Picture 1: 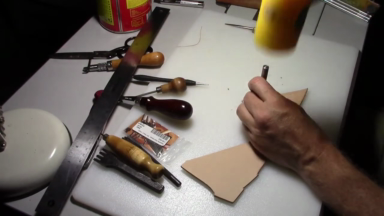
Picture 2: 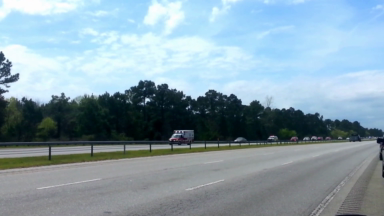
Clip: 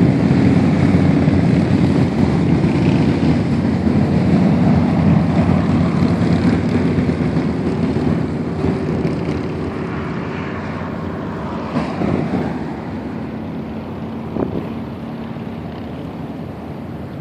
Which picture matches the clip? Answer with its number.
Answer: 2